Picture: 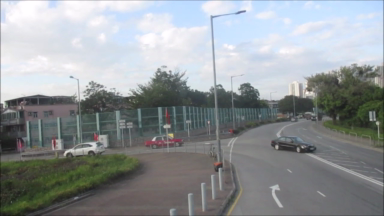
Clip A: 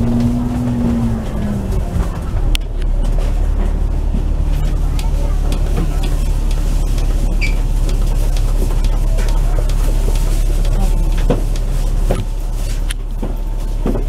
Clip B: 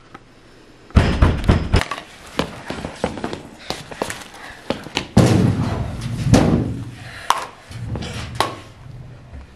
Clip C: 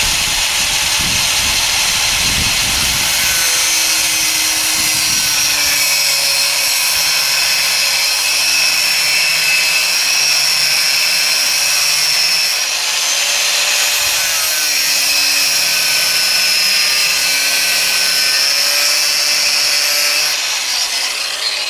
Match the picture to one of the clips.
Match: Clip A